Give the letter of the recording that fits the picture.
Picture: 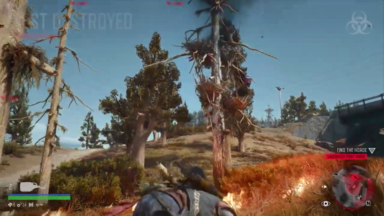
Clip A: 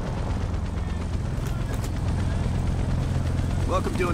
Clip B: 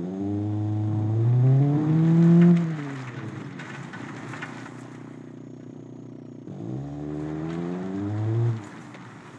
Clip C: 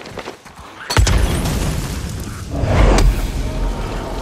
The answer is C